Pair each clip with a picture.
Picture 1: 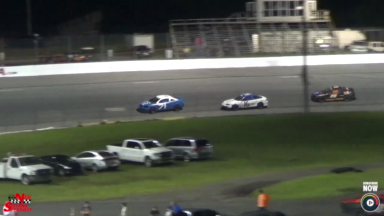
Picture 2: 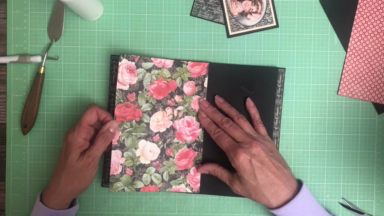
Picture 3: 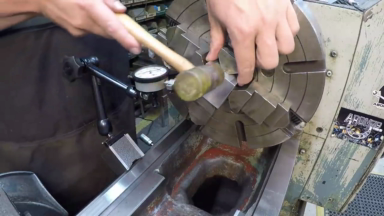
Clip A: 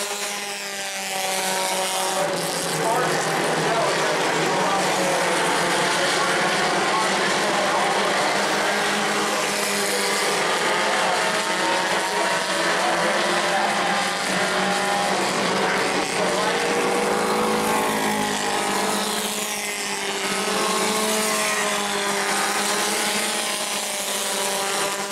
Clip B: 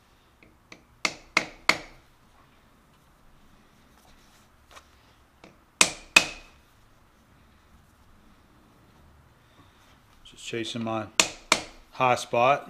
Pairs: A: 1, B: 3